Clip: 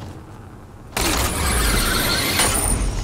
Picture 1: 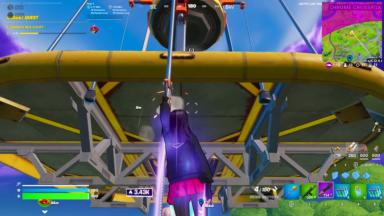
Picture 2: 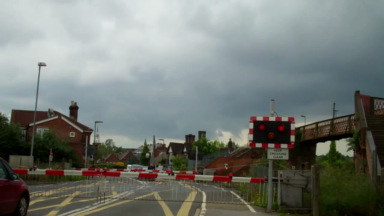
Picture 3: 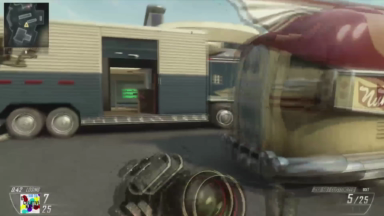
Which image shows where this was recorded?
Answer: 1